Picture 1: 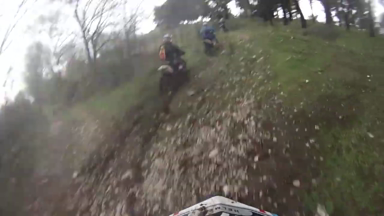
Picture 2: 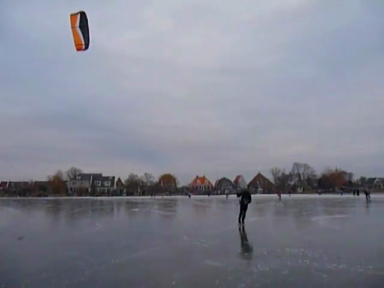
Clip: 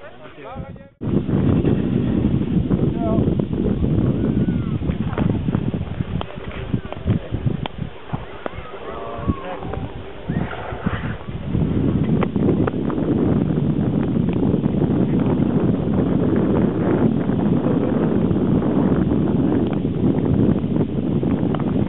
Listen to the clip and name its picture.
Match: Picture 2